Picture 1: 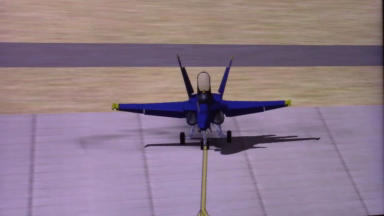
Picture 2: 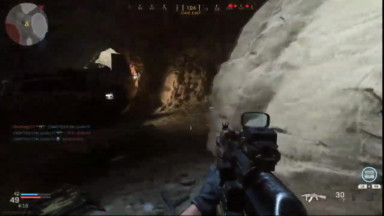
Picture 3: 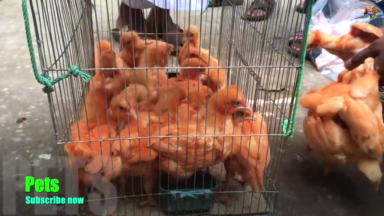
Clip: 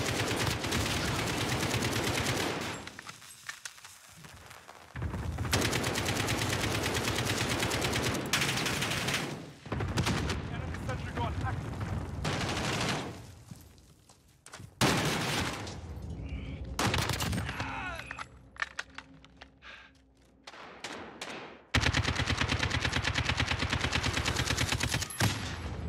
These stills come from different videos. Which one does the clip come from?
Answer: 2